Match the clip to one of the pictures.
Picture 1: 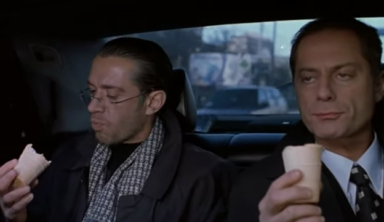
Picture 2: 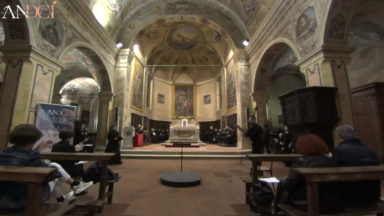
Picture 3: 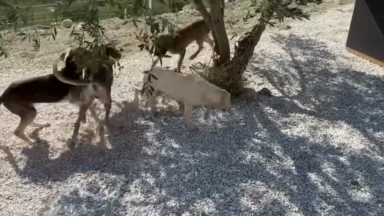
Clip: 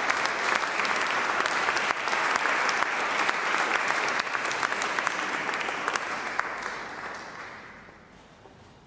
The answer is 2